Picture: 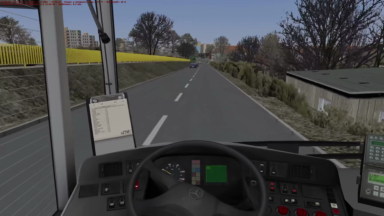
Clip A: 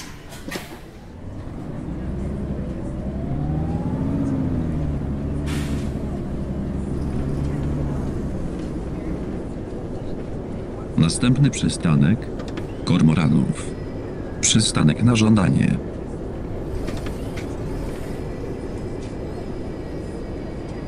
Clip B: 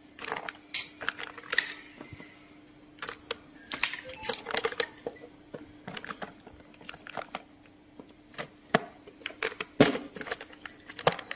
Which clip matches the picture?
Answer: A